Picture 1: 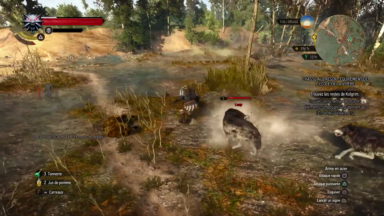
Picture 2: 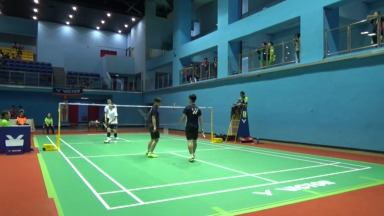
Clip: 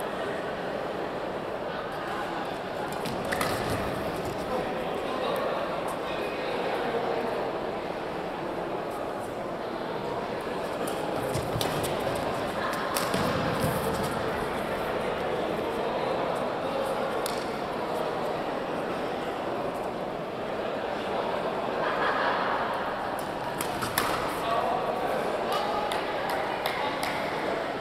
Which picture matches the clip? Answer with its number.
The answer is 2